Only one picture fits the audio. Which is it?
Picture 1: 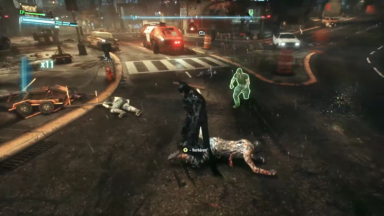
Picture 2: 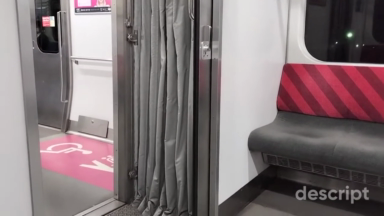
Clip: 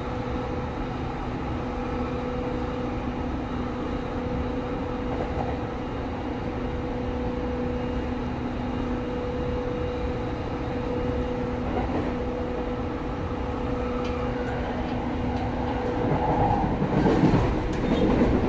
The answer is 2